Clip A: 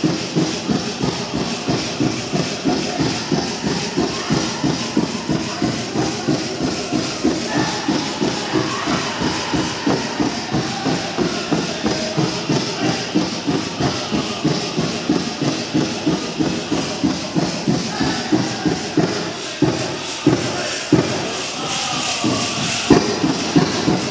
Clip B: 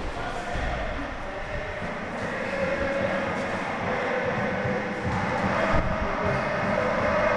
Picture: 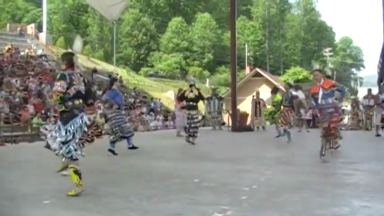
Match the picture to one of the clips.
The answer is A